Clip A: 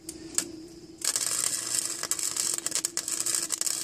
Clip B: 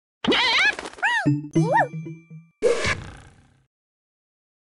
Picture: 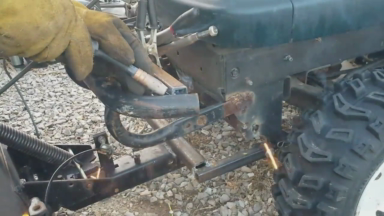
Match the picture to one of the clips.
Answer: A